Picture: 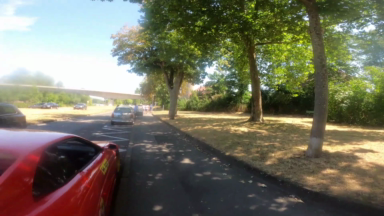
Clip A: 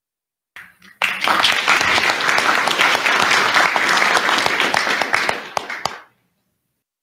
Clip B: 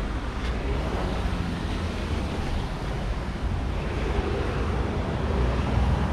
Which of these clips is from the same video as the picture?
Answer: B